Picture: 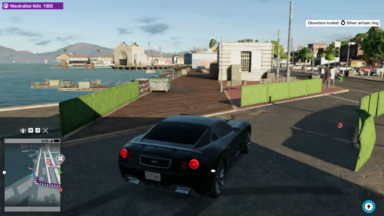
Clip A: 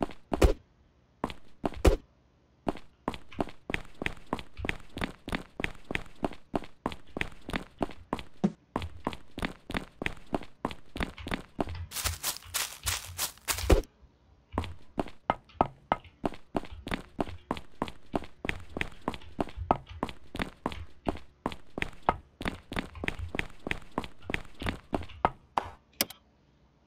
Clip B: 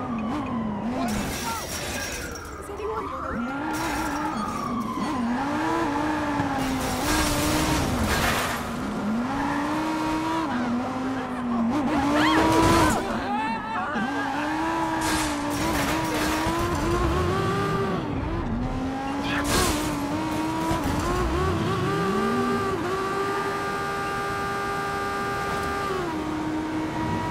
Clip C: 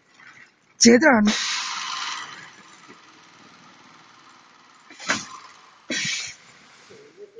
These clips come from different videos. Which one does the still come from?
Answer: B